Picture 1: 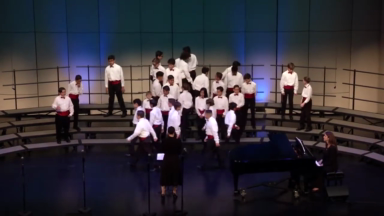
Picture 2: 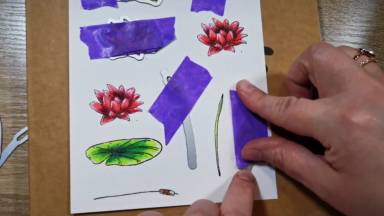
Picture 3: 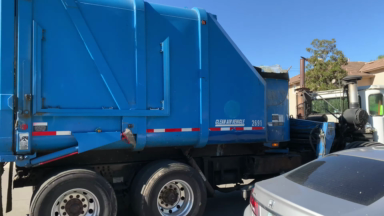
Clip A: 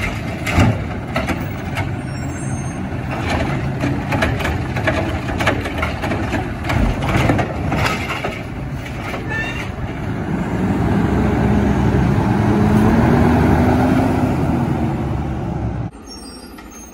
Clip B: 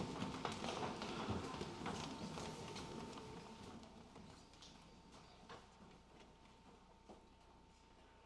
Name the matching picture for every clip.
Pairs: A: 3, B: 1